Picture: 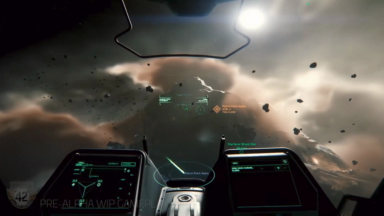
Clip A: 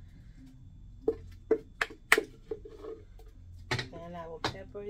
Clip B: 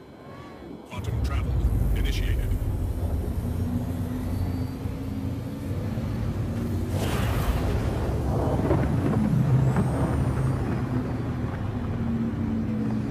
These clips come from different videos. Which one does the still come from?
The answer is B